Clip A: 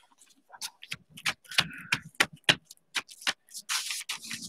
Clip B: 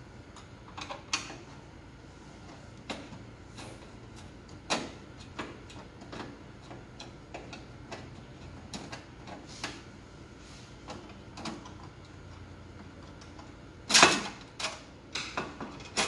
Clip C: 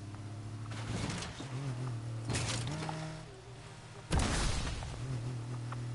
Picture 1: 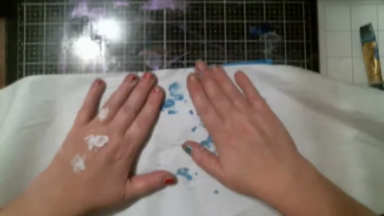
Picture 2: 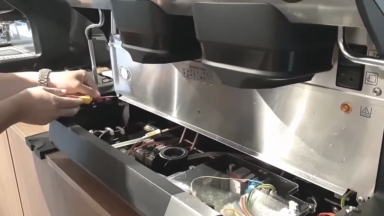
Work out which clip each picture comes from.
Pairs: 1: A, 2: B